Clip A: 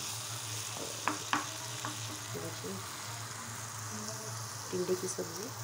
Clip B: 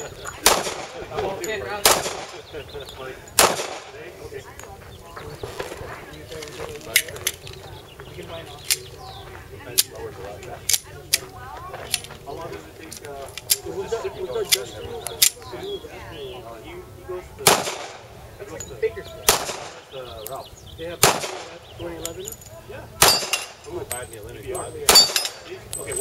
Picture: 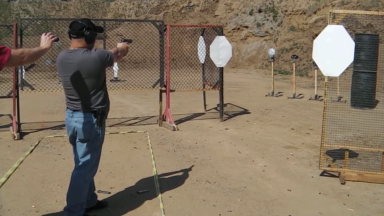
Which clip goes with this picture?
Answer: B